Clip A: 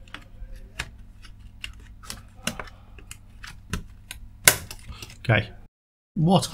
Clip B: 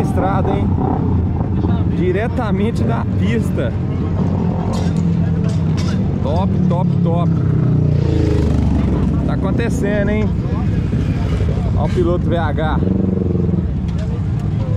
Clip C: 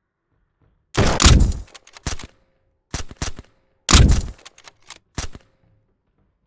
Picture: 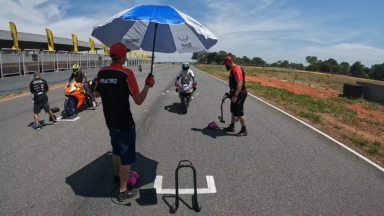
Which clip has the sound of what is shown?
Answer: B